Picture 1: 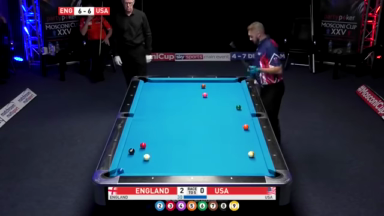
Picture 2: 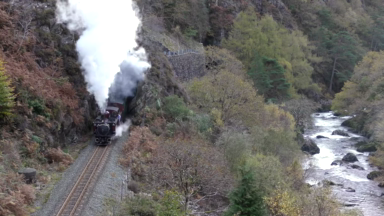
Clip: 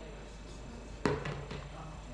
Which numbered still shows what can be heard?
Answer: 1